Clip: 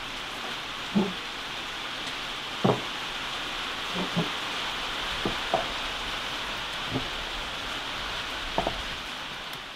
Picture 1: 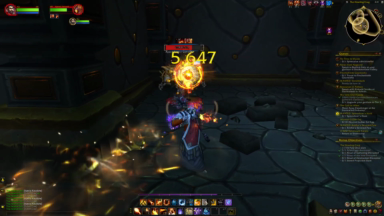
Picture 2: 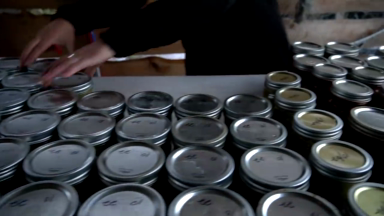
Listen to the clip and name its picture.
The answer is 2